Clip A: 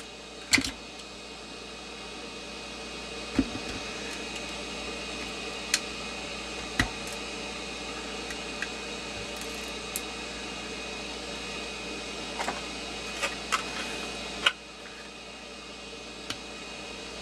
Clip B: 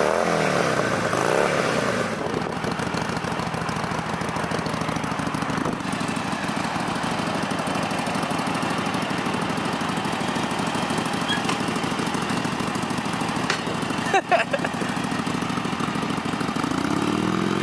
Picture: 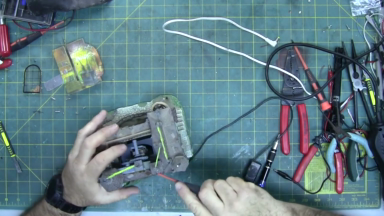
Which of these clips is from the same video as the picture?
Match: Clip A